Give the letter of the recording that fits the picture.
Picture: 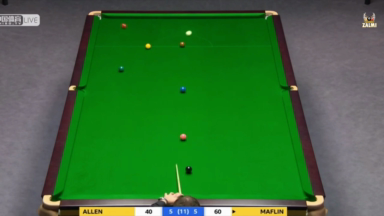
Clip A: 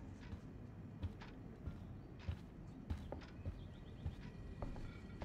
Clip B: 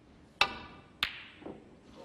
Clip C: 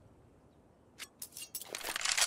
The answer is B